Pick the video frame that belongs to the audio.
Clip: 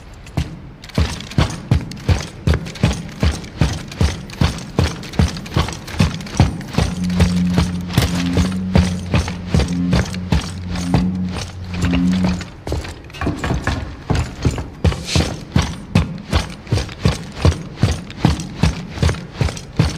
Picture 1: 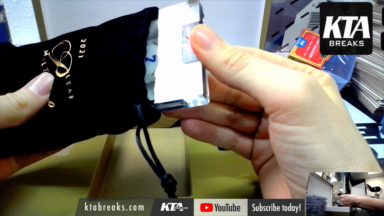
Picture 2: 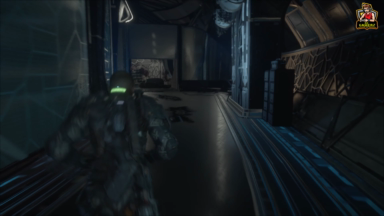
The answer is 2